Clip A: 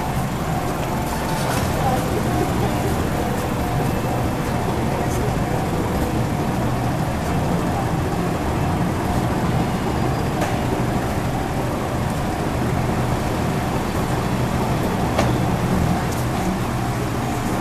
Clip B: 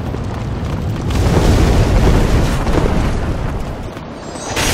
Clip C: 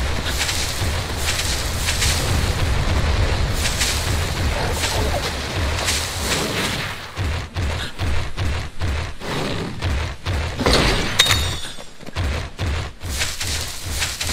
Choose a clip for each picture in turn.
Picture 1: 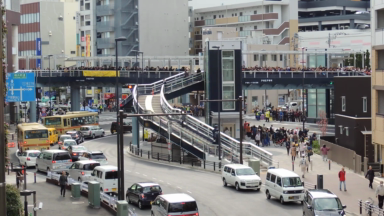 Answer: A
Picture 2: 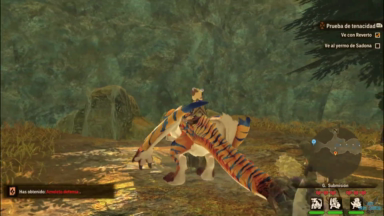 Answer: C